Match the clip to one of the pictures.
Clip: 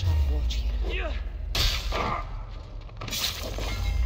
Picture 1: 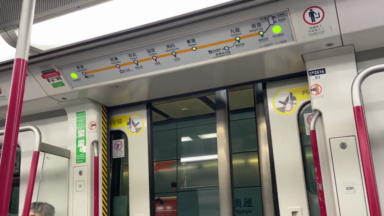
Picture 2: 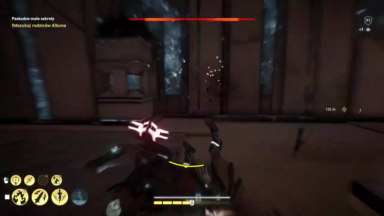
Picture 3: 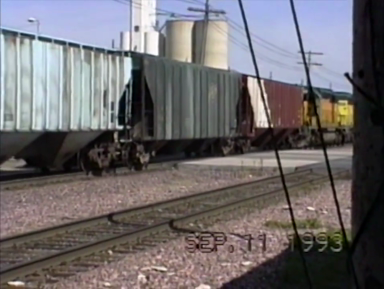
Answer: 2